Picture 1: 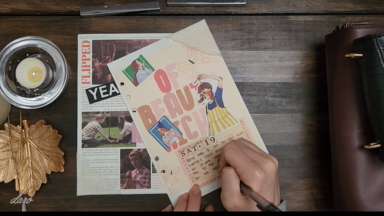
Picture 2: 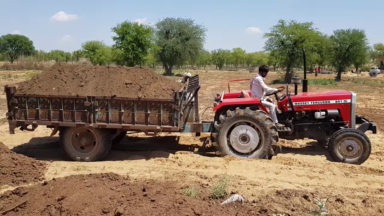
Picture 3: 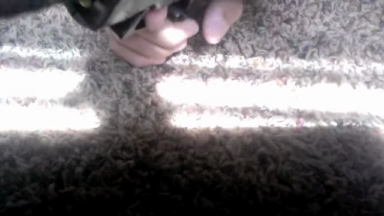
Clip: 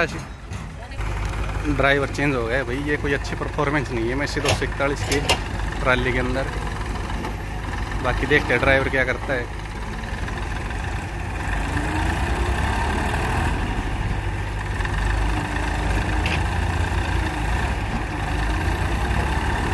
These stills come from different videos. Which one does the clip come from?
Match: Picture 2